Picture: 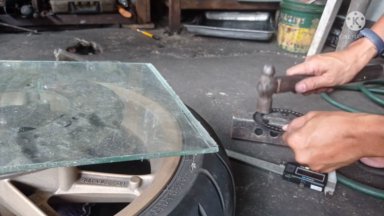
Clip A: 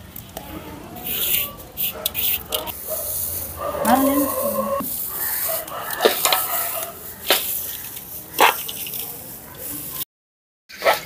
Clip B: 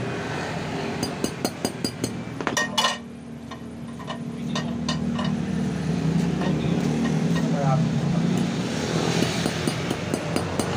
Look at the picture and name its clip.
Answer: B